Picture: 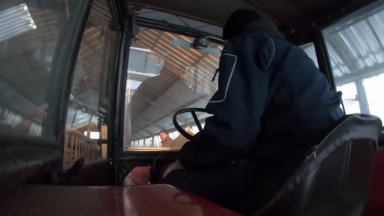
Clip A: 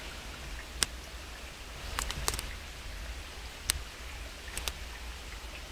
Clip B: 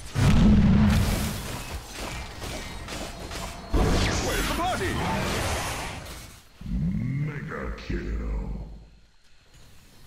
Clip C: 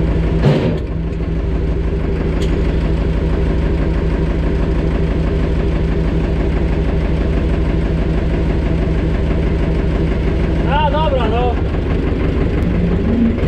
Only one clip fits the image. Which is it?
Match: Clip C